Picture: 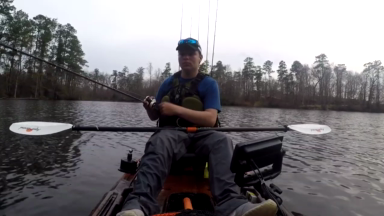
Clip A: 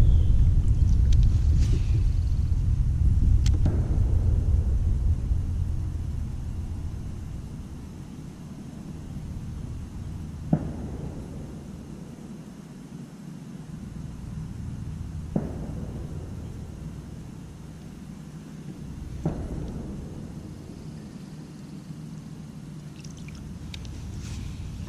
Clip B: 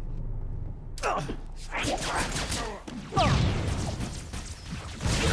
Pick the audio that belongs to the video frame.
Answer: A